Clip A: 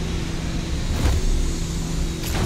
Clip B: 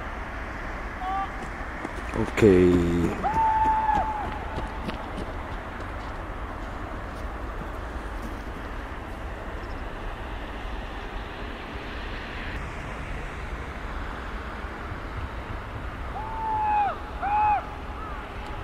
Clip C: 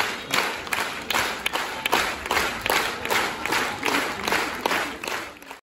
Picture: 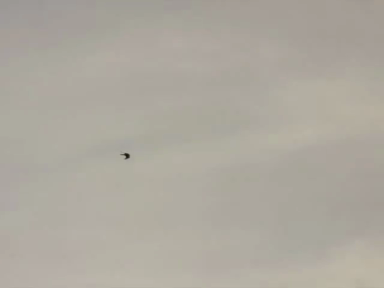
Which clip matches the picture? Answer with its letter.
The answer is B